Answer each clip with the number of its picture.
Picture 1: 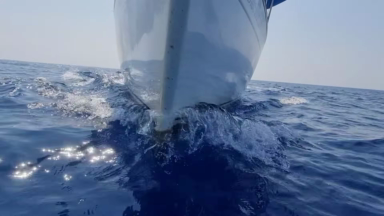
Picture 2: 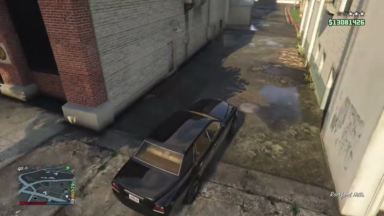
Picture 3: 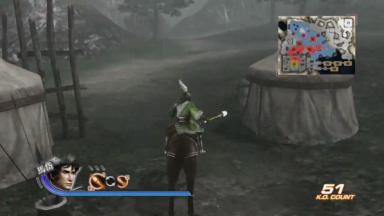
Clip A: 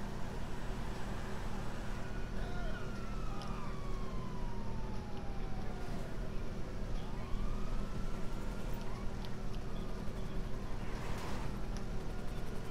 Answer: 2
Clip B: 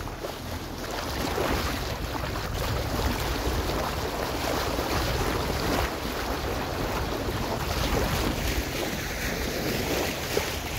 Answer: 1